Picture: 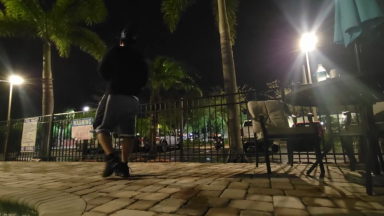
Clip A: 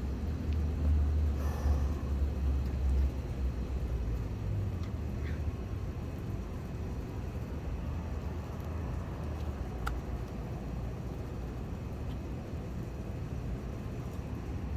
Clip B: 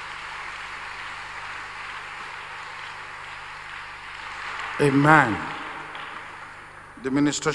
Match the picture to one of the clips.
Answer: A